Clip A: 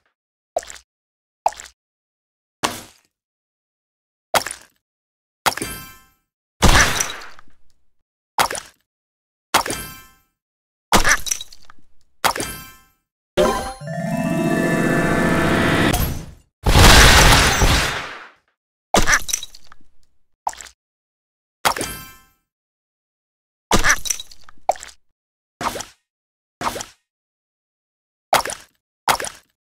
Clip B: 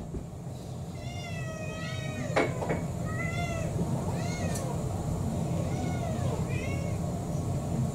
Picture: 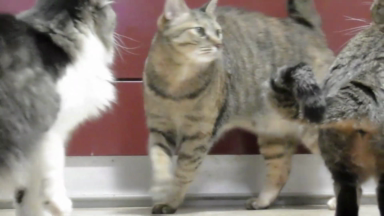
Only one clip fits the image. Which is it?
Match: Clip B